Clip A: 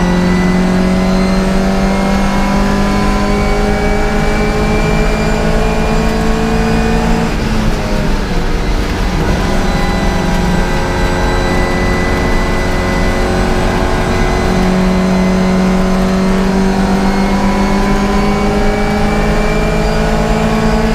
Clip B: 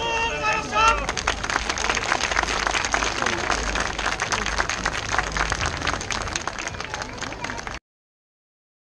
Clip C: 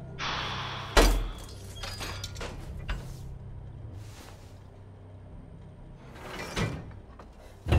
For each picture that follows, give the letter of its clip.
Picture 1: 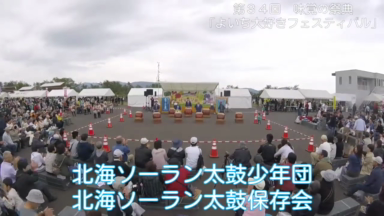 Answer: B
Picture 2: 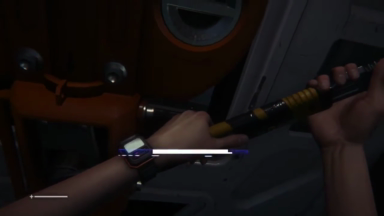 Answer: C